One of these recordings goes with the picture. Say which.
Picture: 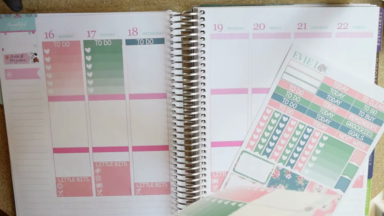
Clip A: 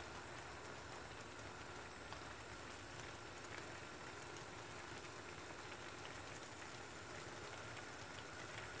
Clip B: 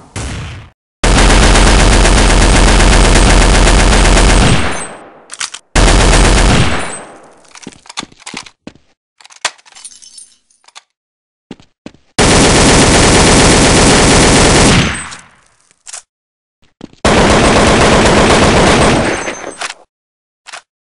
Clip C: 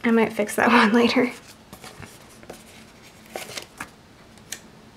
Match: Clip C